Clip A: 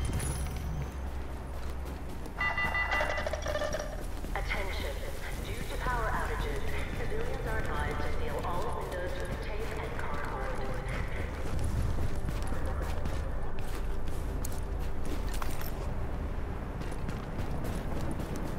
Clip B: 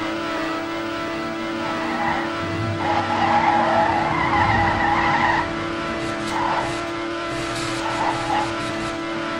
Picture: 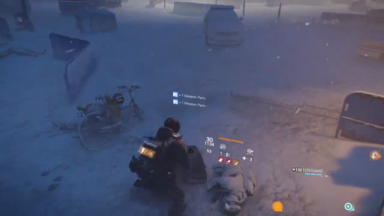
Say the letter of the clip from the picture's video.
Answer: A